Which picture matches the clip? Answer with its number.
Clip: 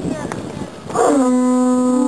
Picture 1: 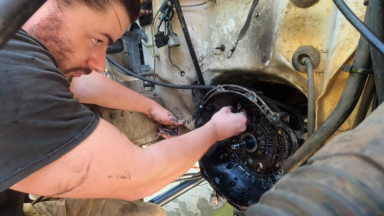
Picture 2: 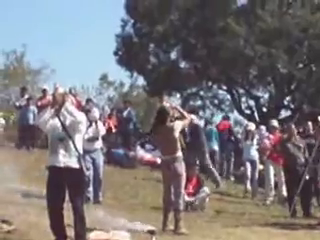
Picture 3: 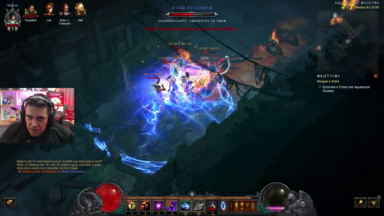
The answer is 2